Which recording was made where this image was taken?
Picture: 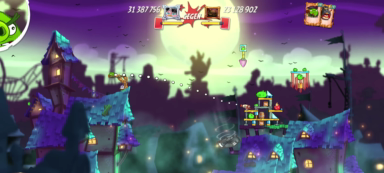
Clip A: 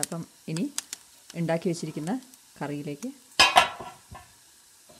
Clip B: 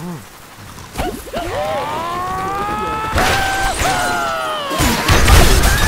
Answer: B